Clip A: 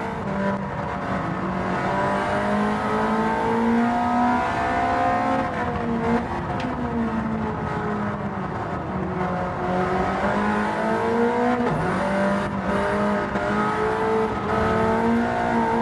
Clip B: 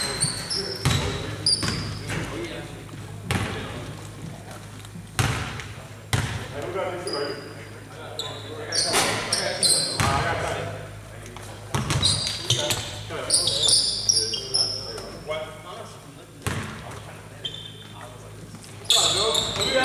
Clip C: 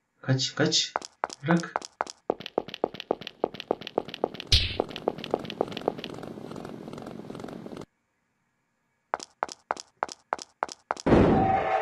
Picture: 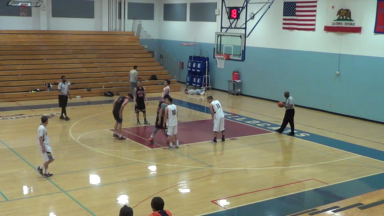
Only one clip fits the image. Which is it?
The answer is B